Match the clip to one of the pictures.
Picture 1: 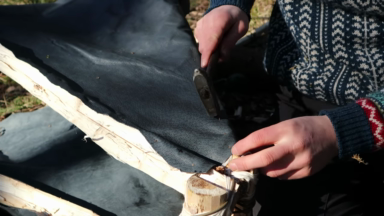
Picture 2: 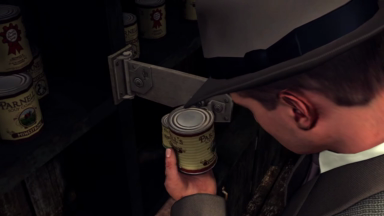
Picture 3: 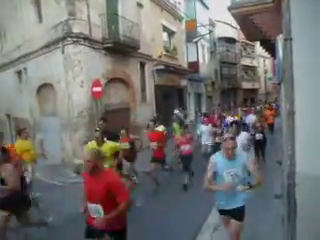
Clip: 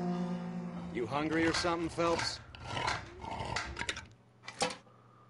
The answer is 2